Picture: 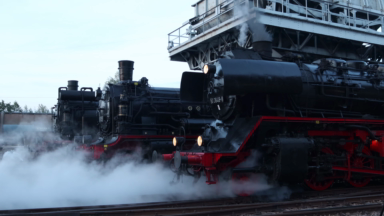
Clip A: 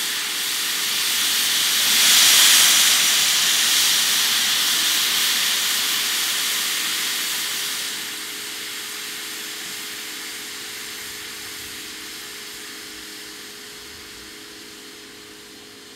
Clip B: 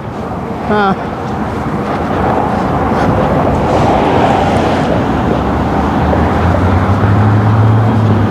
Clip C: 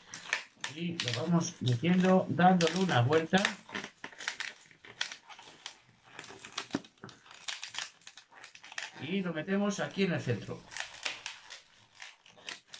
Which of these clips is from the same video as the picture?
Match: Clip A